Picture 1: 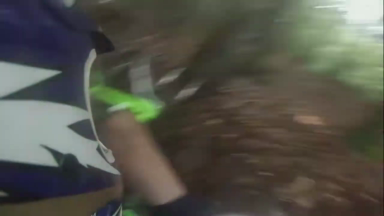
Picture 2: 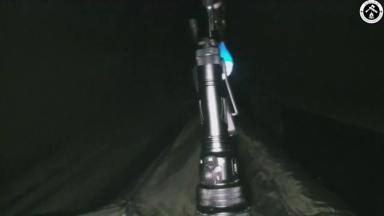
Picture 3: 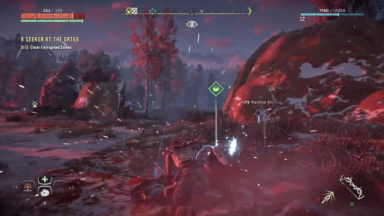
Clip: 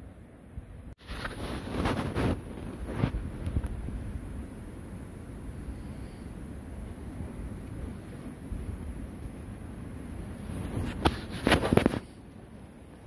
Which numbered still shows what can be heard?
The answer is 2